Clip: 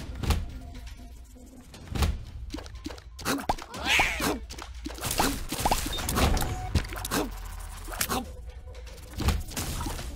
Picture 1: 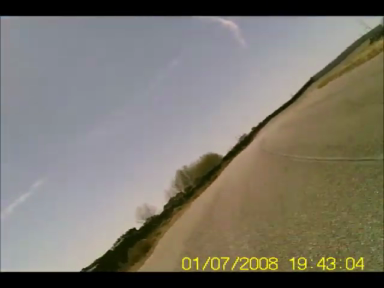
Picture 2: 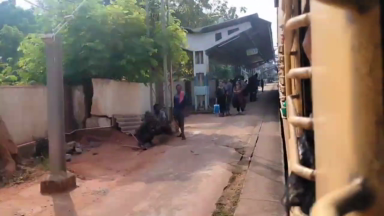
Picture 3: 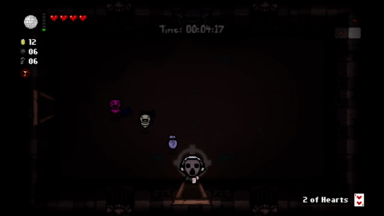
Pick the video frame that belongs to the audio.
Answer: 3